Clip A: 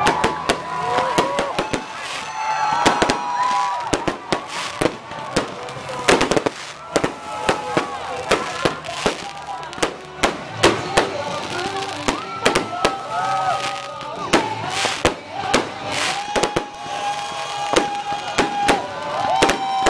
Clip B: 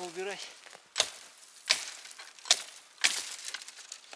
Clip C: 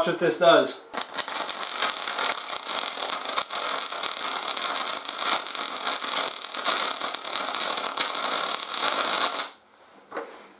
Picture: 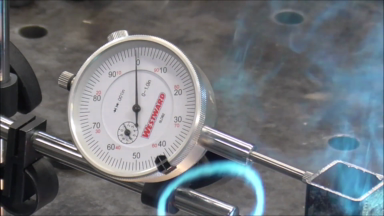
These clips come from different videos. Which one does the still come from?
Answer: C